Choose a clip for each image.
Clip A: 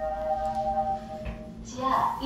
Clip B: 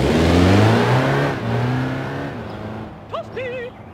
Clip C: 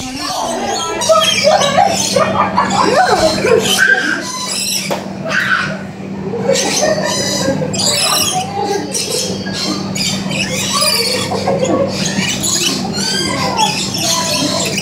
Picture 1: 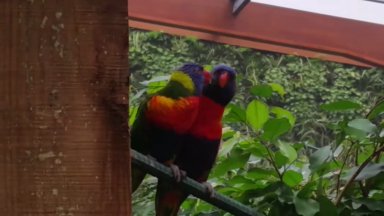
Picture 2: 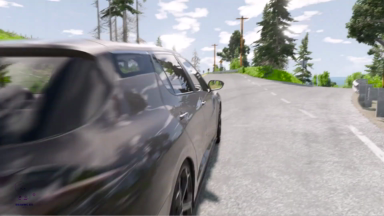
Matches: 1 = C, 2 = B